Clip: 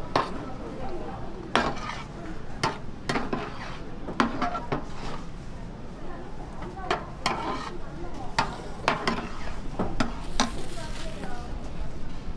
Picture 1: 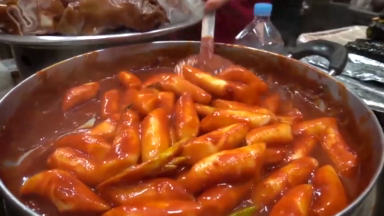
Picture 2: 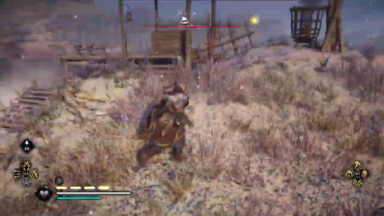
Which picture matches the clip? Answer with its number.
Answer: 1